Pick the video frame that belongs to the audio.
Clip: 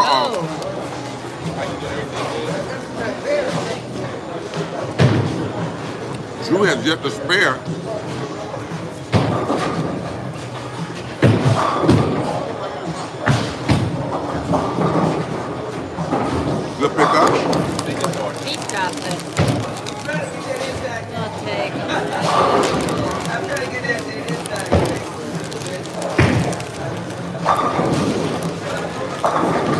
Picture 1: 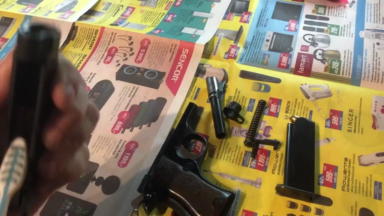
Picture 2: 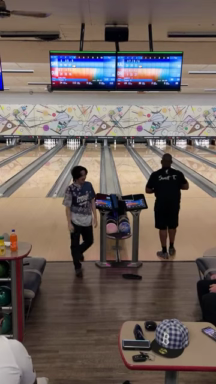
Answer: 2